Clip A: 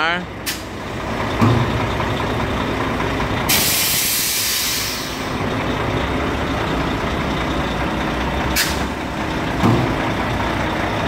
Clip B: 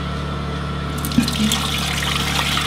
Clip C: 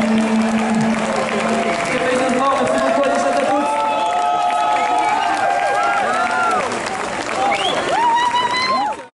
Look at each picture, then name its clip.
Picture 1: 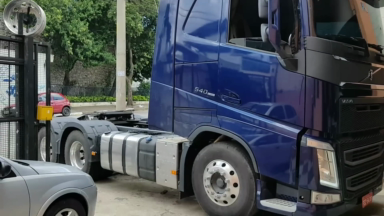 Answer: A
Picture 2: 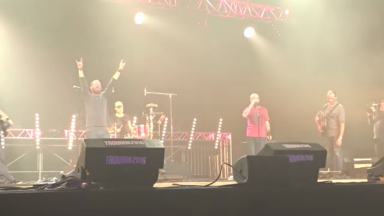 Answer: C